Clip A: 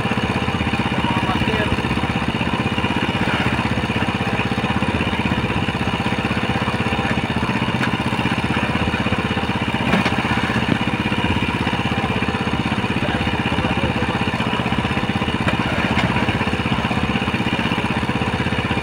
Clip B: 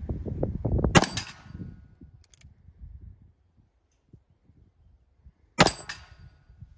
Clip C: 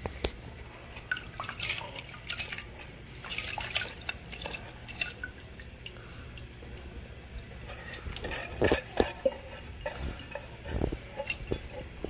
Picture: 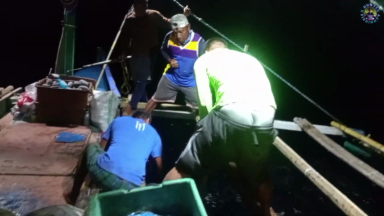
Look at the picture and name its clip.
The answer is A